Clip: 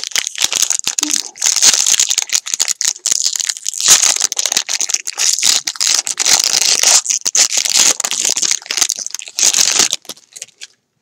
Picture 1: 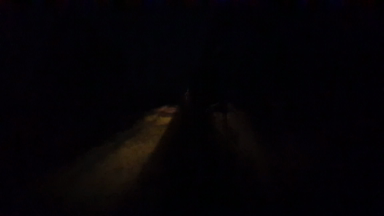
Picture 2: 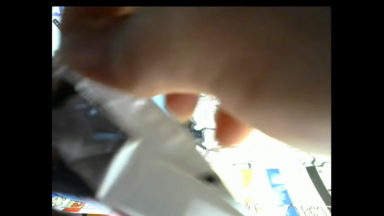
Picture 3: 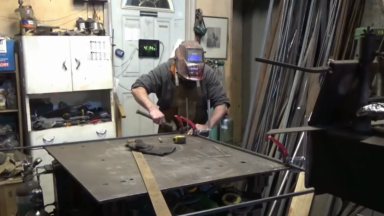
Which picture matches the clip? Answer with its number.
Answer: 2